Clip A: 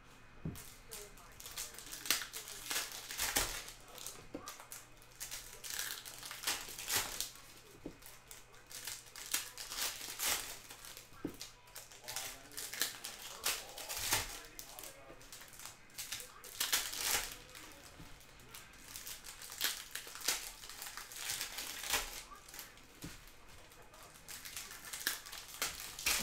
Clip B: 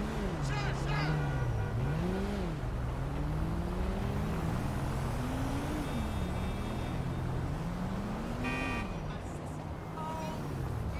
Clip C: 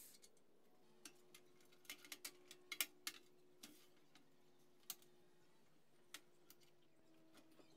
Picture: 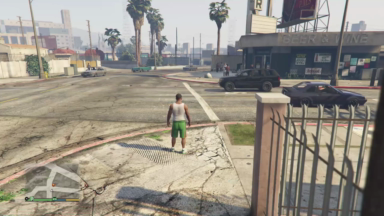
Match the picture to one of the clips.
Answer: B